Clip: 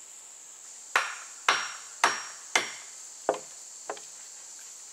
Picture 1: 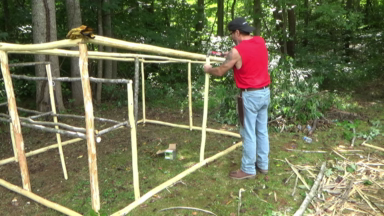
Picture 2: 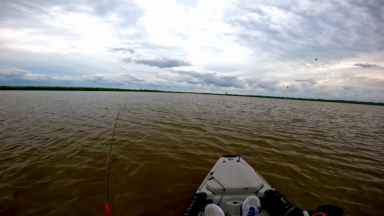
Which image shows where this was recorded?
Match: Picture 1